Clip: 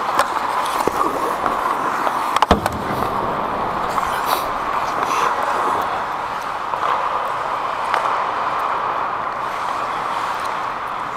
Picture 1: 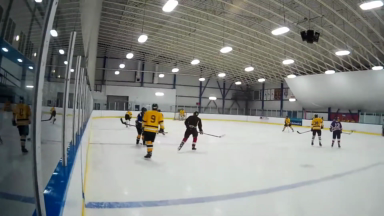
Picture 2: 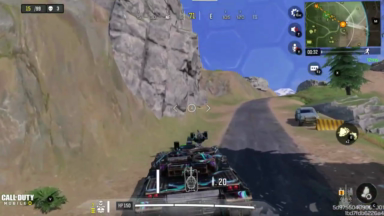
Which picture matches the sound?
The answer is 1